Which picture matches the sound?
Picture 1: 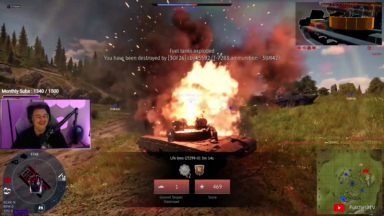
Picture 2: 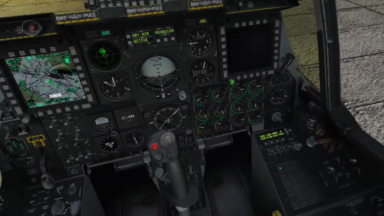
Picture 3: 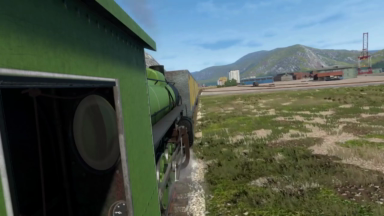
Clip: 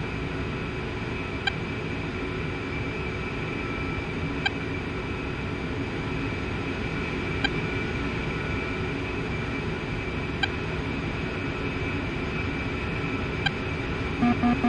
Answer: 2